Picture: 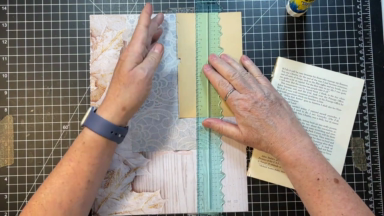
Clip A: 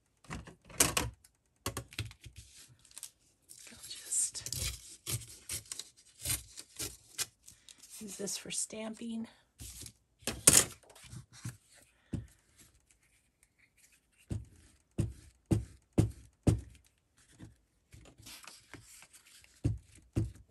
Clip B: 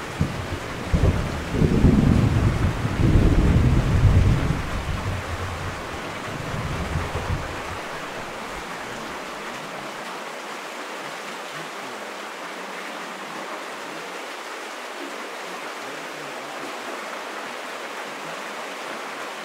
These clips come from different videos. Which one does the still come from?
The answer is A